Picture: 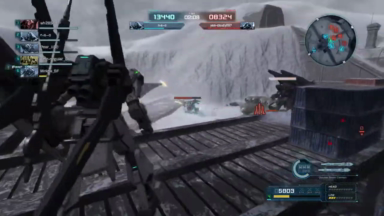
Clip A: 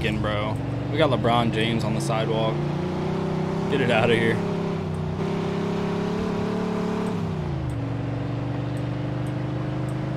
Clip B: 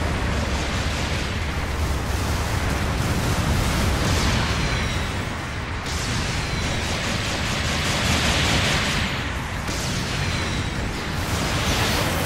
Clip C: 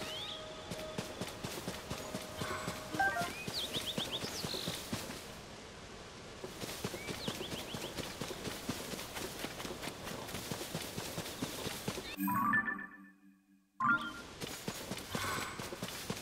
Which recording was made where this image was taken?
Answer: B